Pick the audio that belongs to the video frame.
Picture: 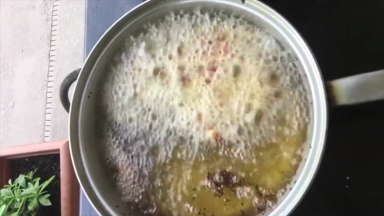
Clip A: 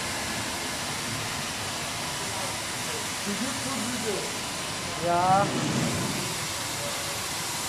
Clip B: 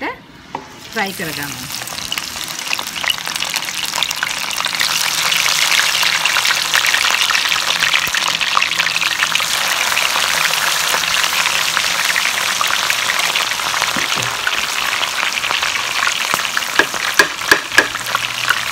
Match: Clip B